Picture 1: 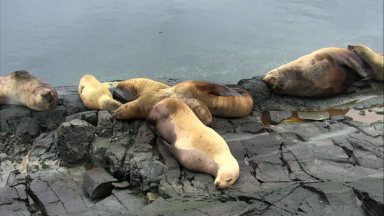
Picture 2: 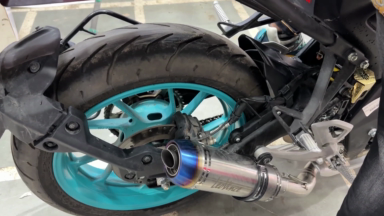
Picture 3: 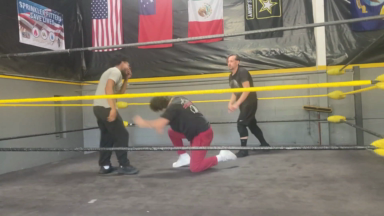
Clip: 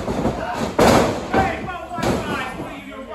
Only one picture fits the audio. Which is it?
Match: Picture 3